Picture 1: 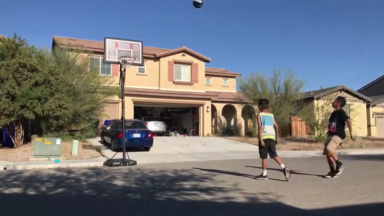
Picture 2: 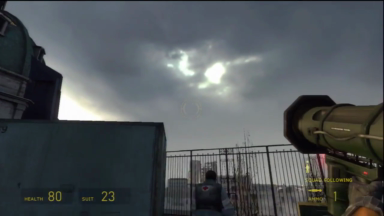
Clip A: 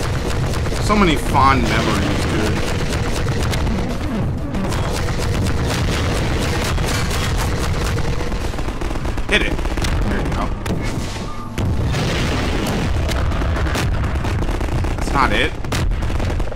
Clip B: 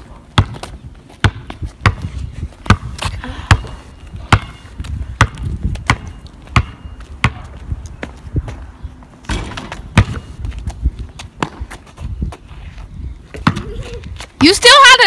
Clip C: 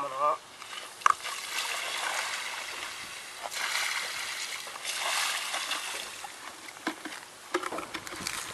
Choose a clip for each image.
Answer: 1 B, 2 A